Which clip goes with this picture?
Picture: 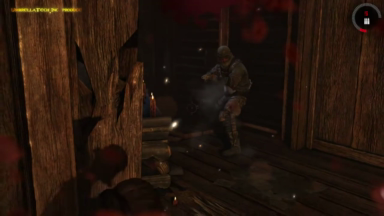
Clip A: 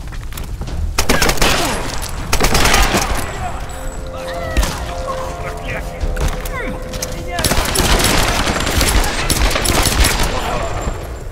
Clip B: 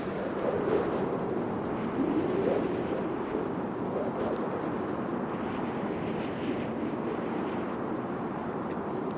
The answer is A